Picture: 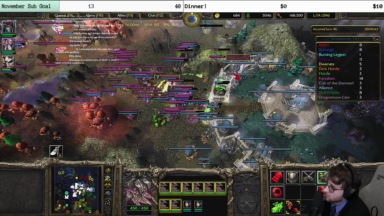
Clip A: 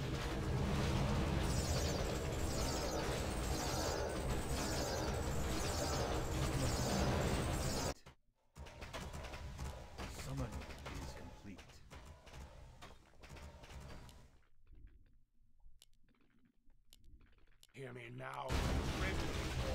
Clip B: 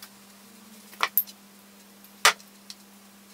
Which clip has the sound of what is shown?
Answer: A